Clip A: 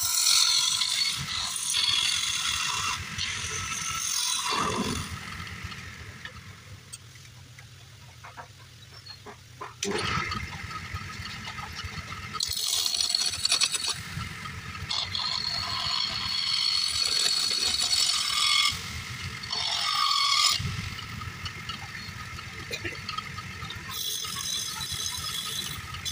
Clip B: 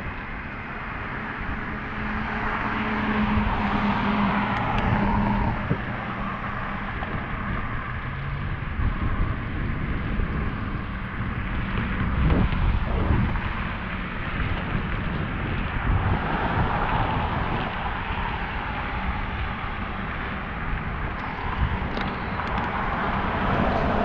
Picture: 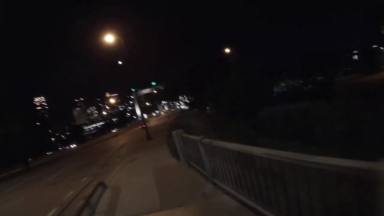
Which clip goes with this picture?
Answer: B